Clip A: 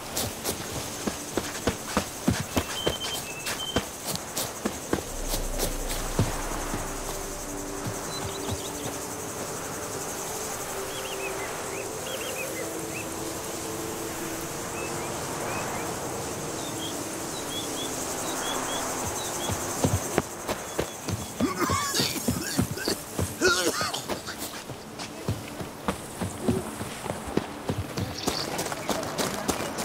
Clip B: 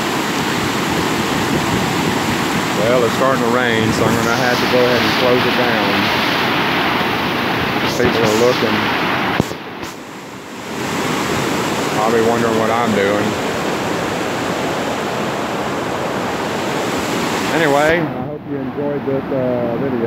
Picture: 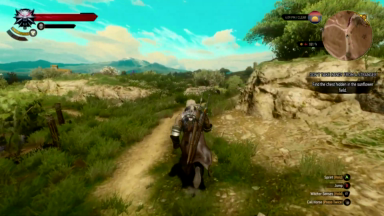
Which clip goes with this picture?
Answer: A